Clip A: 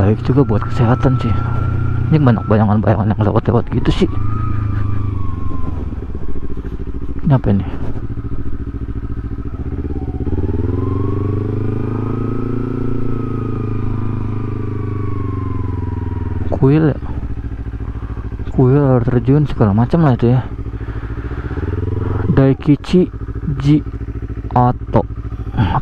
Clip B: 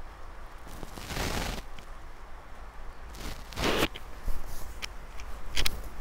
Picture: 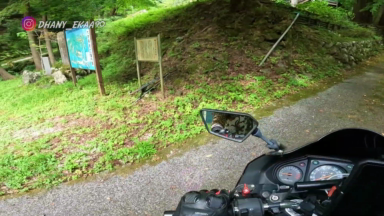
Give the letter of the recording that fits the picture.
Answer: A